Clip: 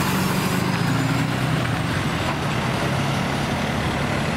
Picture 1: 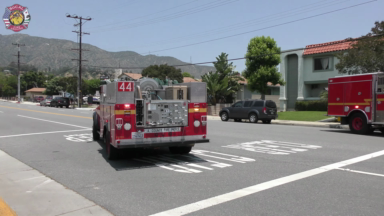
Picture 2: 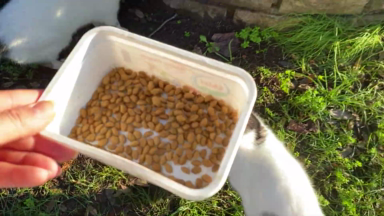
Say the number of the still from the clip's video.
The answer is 1